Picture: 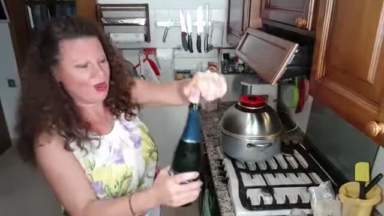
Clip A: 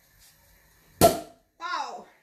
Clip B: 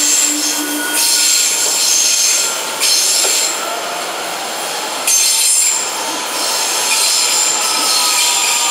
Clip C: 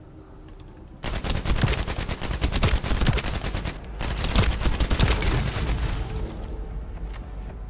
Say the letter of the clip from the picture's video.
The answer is A